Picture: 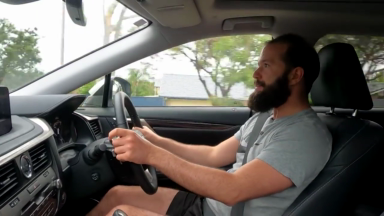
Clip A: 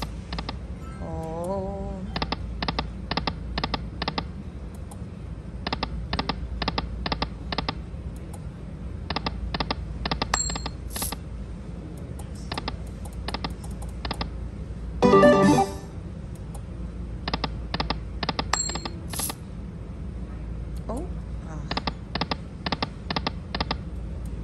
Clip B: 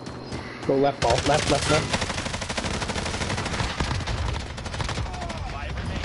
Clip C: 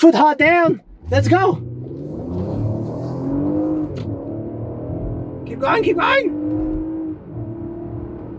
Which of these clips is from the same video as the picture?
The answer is C